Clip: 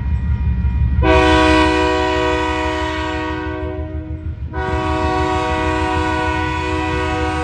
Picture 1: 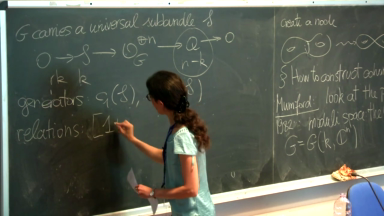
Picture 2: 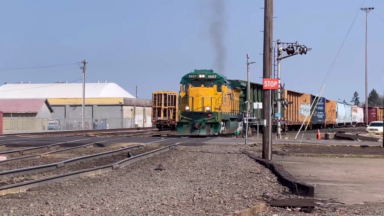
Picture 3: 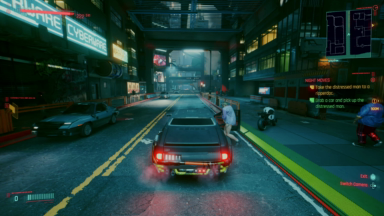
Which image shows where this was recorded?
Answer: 2